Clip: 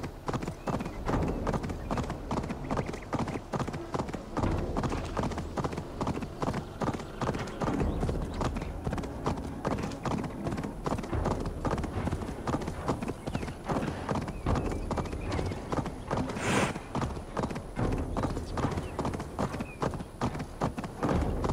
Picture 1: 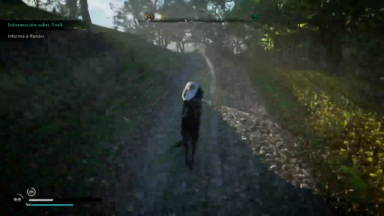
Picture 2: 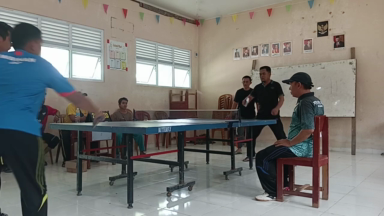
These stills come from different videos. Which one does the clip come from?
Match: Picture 1